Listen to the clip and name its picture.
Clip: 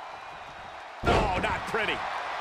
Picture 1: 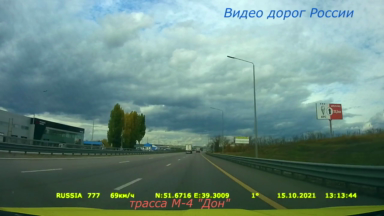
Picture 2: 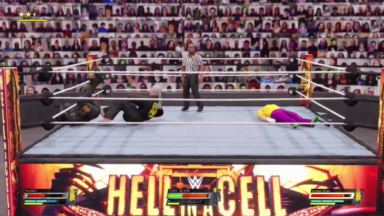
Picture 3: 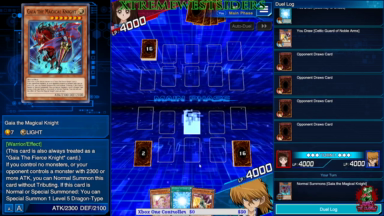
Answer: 2